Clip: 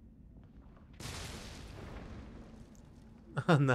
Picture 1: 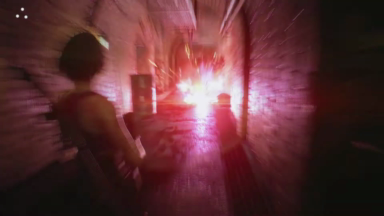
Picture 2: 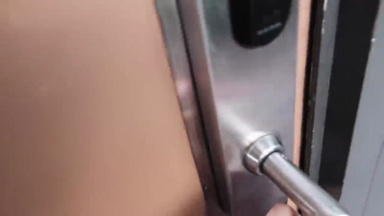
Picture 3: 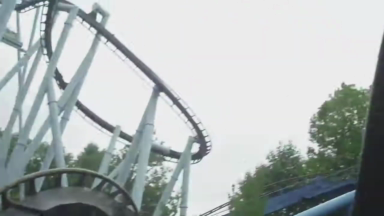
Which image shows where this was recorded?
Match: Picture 1